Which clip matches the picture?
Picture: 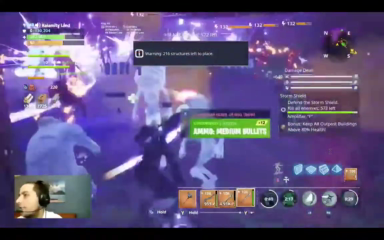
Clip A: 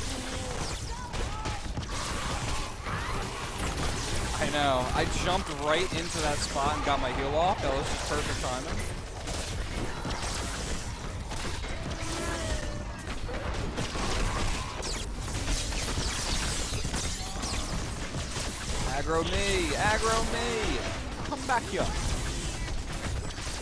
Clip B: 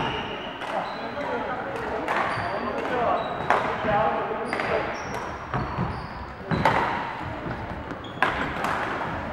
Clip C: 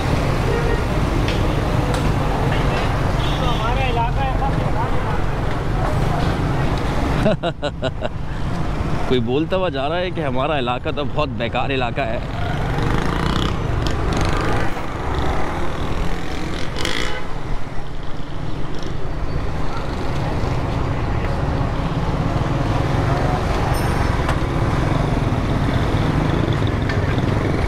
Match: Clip A